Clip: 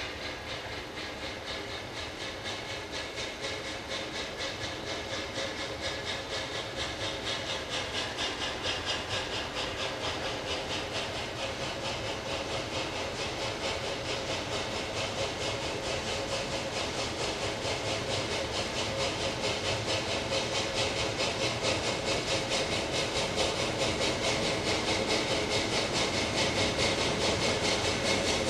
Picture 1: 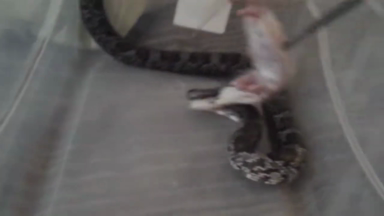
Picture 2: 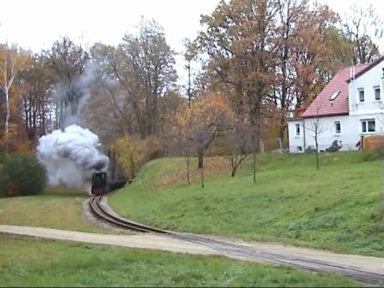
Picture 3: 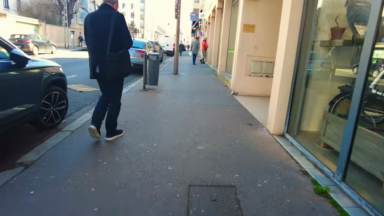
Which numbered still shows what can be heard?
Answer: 2